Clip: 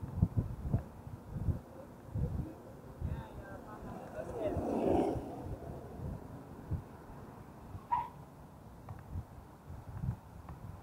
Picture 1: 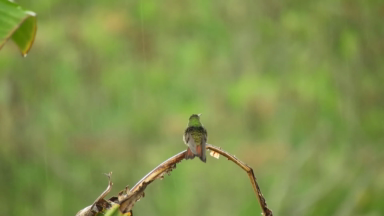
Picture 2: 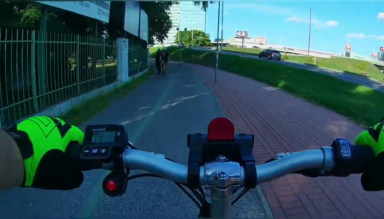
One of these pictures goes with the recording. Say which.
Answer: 2